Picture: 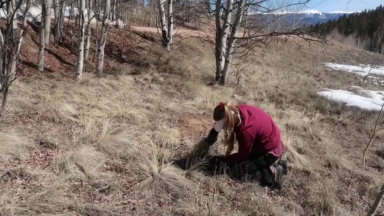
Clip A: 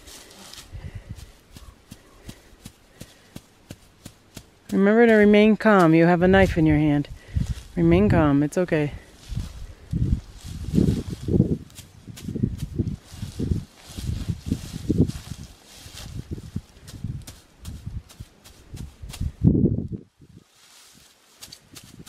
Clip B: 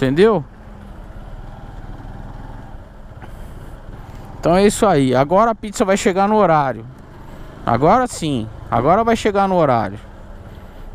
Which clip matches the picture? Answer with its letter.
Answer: A